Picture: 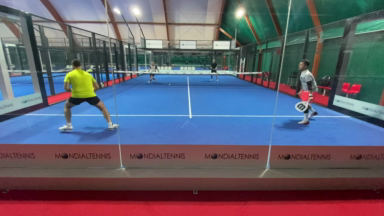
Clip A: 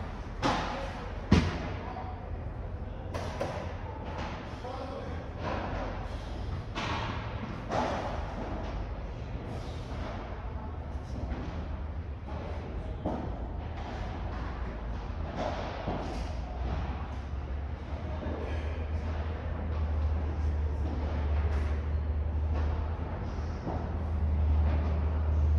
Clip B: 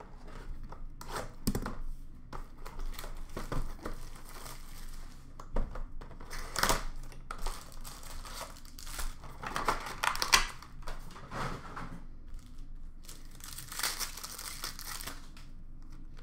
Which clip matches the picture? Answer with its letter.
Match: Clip A